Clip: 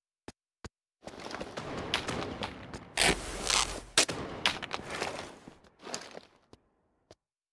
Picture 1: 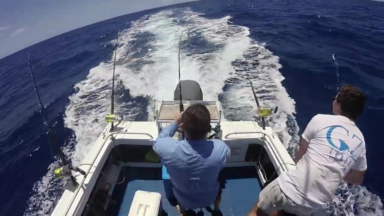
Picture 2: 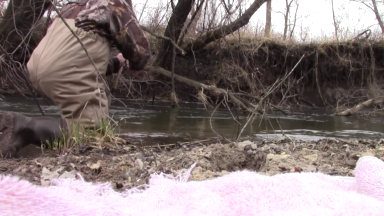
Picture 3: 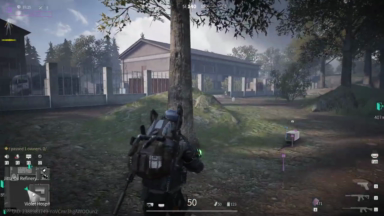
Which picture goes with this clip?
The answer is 3